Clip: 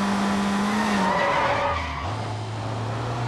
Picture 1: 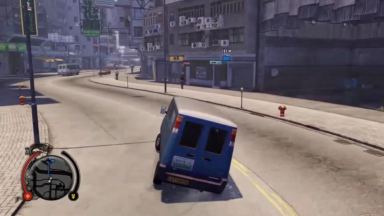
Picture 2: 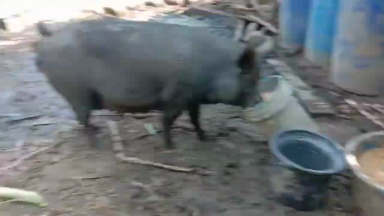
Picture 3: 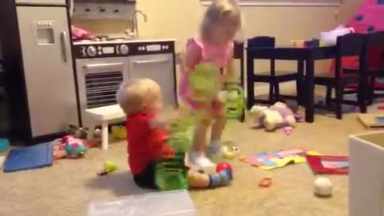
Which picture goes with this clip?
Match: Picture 1